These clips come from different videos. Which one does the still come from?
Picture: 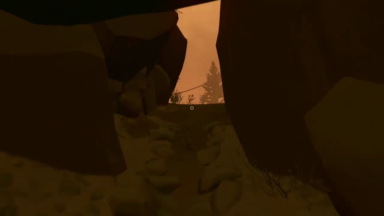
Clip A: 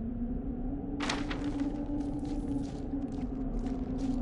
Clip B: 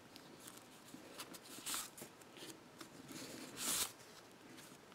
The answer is A